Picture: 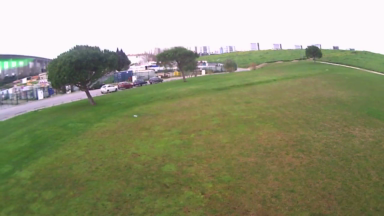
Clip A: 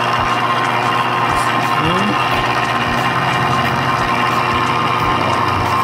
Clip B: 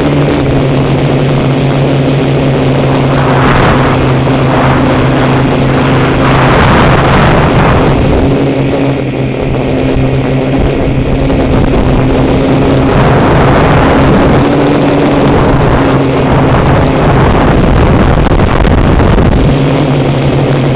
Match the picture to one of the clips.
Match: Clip B